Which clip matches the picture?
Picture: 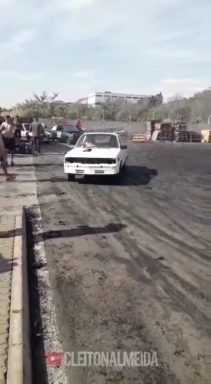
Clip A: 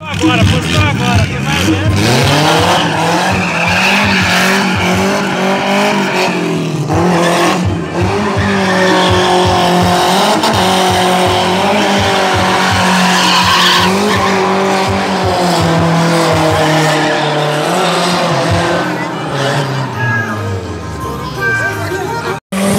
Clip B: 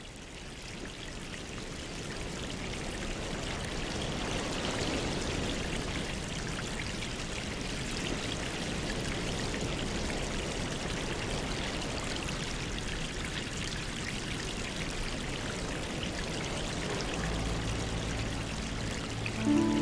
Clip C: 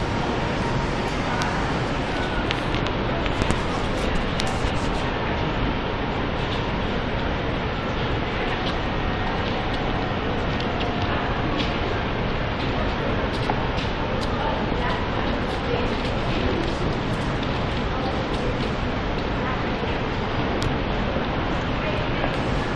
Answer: A